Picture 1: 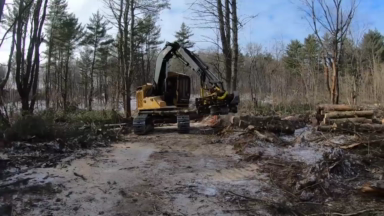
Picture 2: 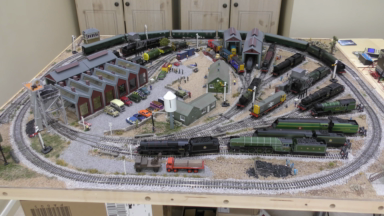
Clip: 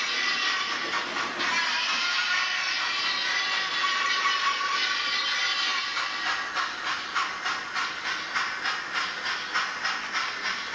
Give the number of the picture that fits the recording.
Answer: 2